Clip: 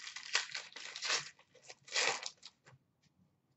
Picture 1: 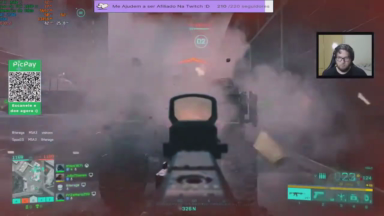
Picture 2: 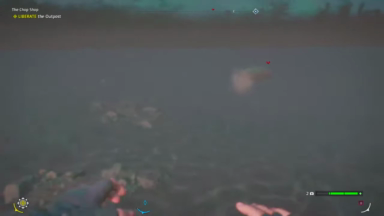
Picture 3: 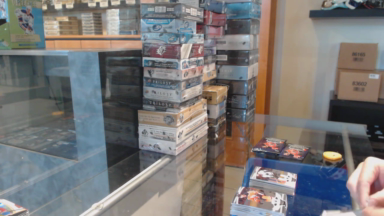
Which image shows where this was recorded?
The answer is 3